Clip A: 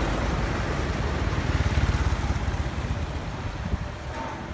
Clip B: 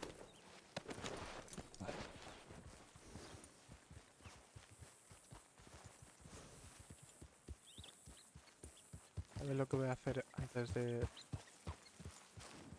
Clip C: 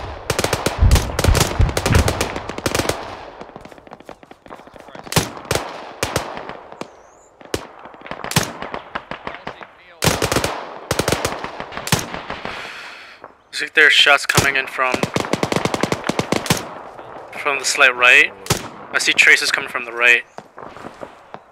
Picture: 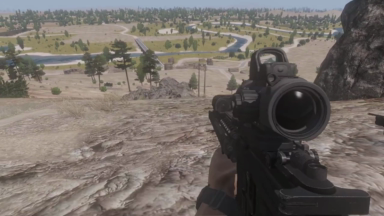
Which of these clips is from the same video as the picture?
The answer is C